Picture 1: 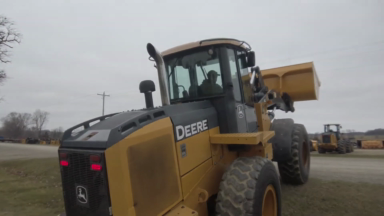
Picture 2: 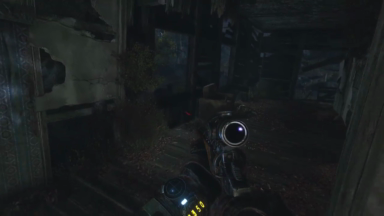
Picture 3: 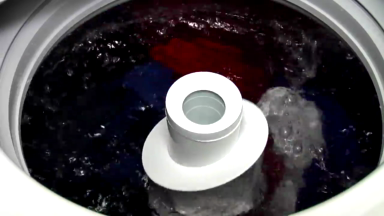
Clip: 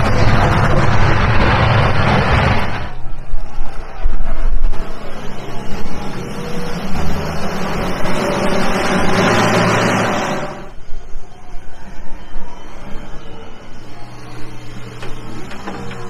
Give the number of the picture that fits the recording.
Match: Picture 1